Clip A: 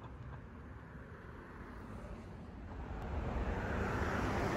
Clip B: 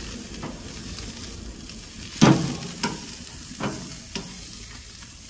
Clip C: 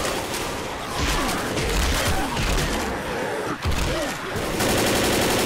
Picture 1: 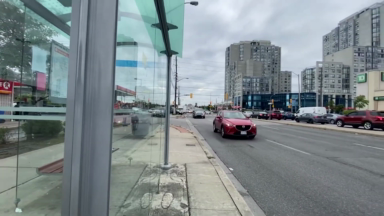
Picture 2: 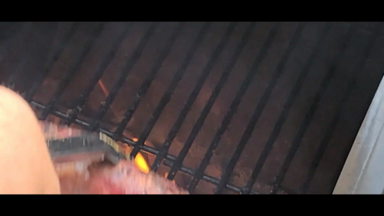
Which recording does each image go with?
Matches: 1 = A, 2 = B